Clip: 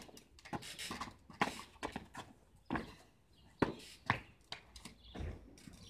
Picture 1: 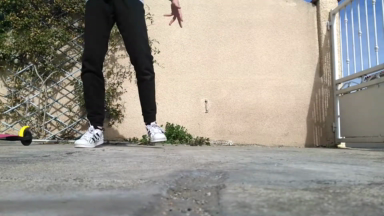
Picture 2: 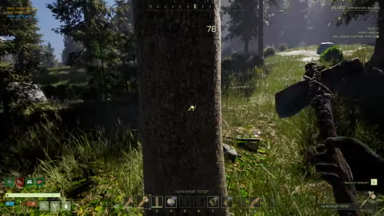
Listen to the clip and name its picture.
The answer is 1